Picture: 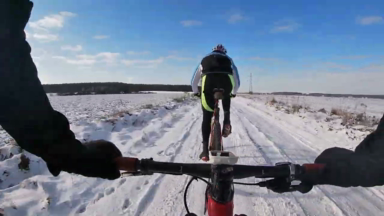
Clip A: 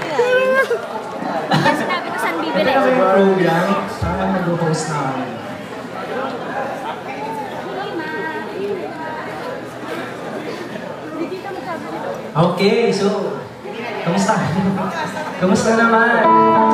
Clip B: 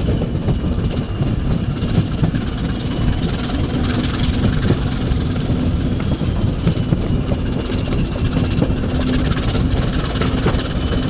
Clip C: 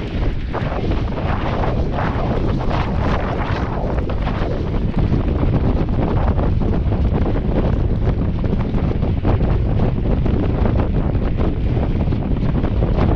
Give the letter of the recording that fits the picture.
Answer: C